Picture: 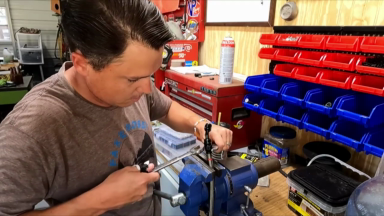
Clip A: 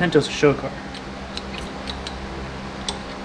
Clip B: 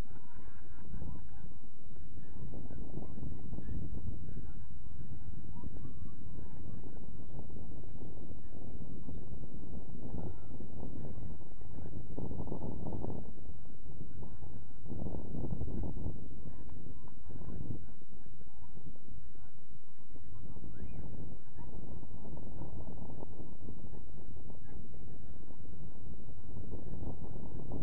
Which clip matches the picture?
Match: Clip A